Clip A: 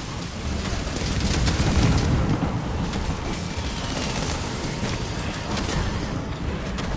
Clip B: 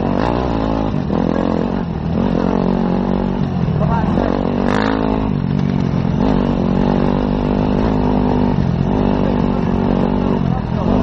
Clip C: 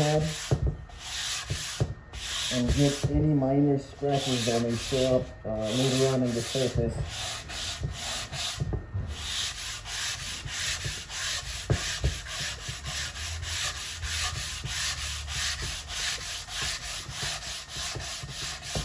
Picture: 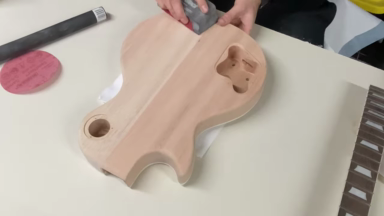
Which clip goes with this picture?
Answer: C